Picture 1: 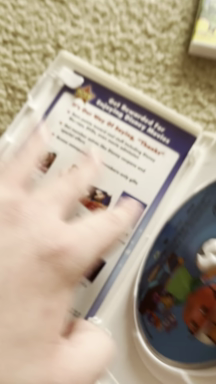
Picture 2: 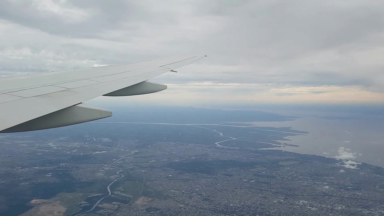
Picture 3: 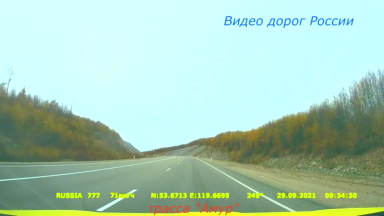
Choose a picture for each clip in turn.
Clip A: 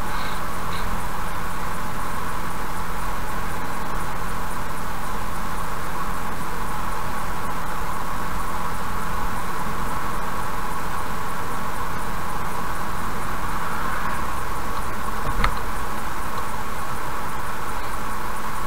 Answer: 3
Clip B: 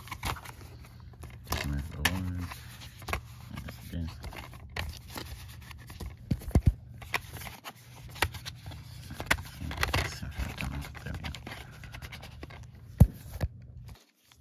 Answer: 1